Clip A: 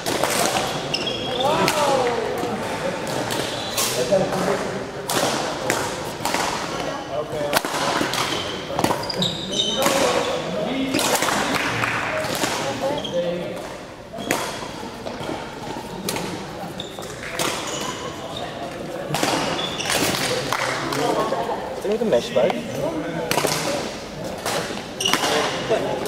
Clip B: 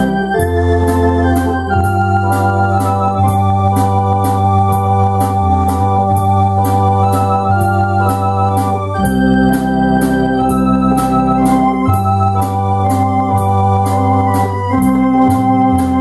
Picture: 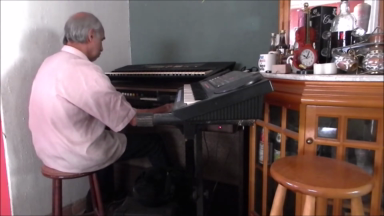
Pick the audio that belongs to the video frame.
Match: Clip B